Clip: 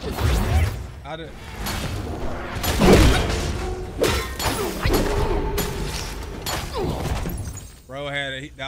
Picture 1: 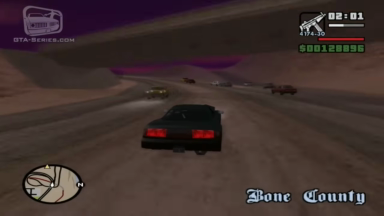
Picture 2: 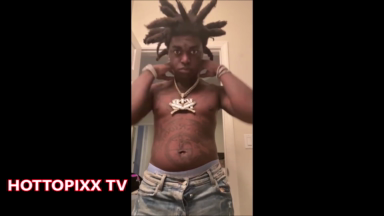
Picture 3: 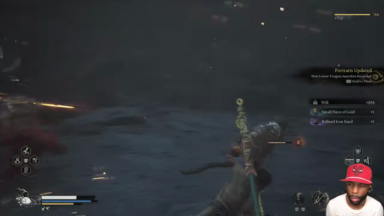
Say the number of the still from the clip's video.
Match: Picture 3